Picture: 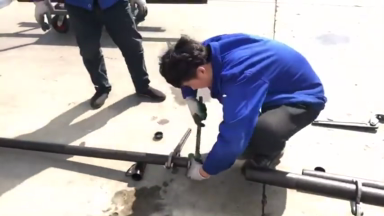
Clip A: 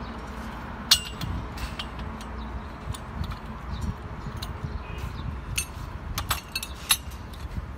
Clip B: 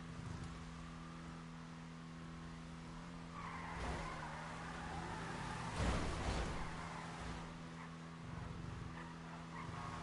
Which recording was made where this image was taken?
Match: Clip A